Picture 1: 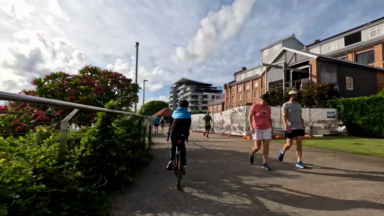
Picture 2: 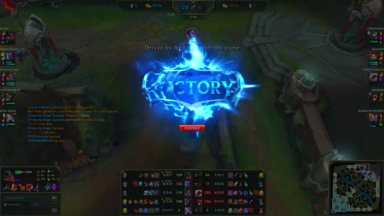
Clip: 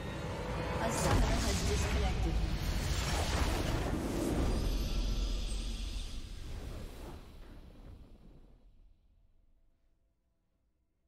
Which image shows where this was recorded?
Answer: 2